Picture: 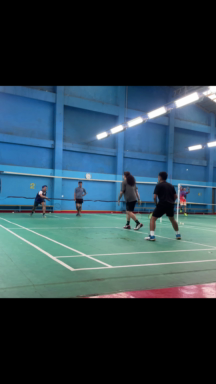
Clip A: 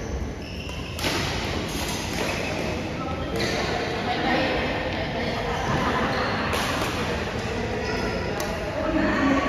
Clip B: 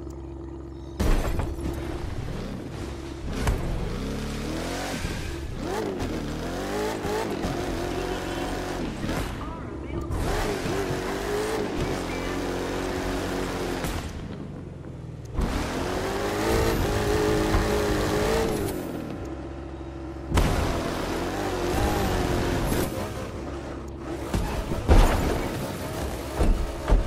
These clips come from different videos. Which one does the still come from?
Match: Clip A